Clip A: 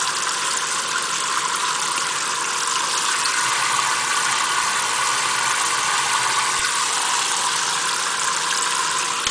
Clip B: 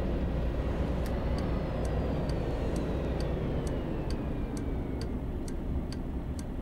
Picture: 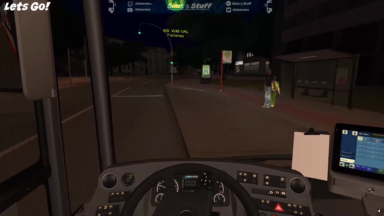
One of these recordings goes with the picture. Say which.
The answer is B